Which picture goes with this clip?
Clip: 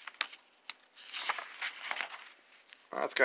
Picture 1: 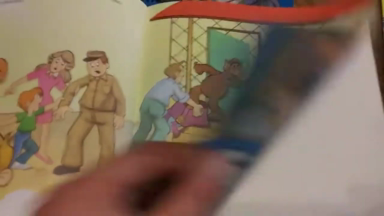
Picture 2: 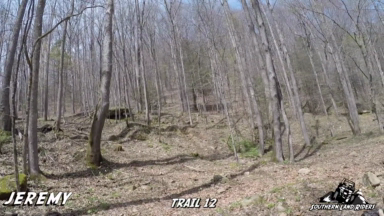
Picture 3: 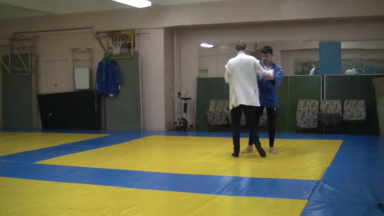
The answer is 1